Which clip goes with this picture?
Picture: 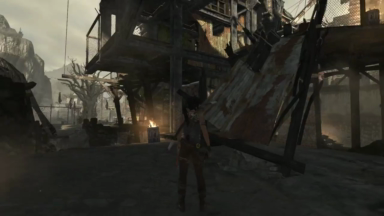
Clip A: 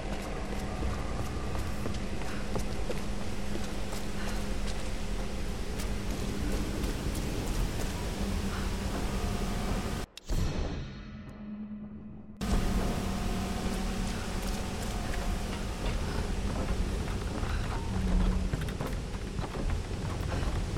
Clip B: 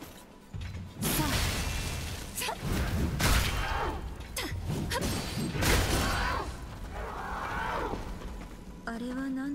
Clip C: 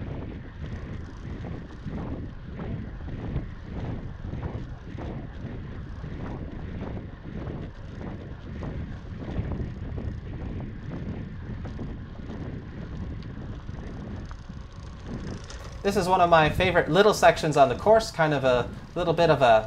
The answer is A